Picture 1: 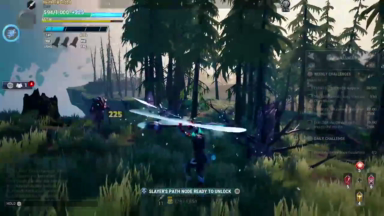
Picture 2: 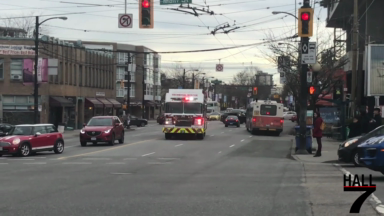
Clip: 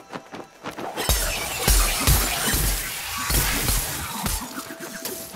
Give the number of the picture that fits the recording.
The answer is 1